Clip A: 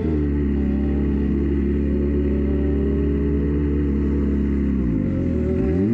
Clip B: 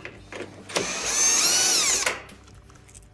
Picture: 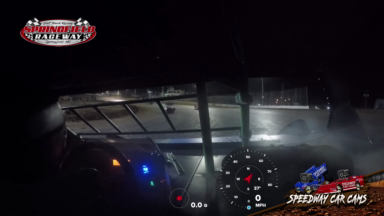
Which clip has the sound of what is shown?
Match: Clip A